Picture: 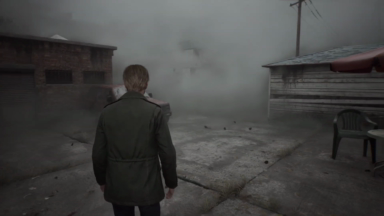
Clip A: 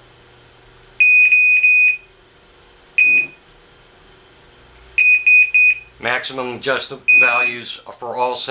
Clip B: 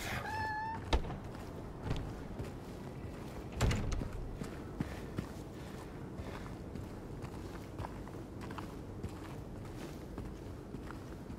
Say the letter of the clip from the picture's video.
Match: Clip B